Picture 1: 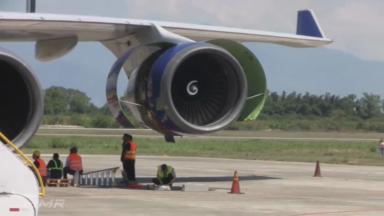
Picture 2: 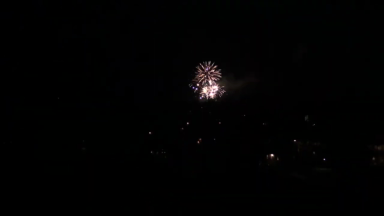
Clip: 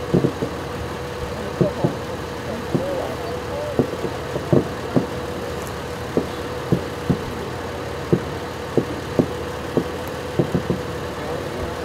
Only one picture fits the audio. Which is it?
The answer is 2